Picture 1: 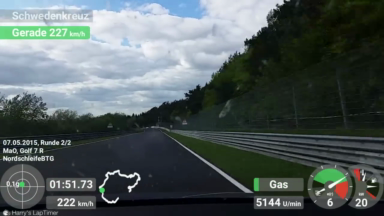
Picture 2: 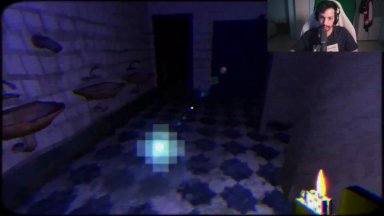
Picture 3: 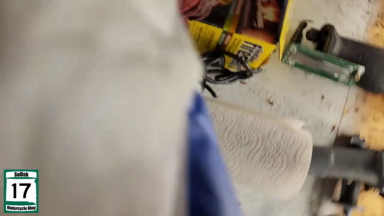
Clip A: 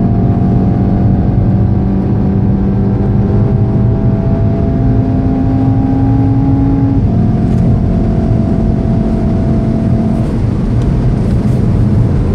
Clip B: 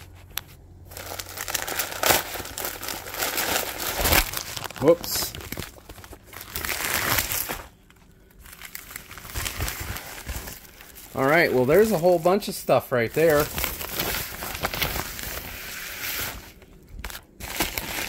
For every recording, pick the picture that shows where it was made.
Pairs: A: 1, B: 3